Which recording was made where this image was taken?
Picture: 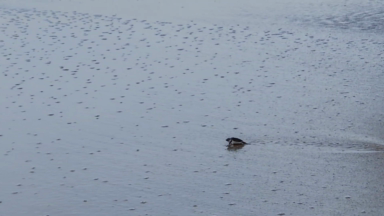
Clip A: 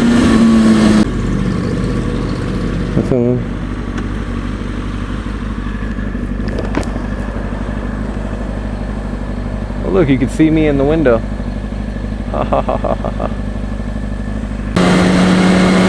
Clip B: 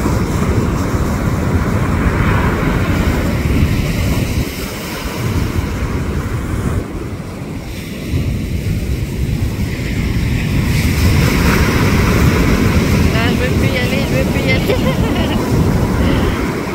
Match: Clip B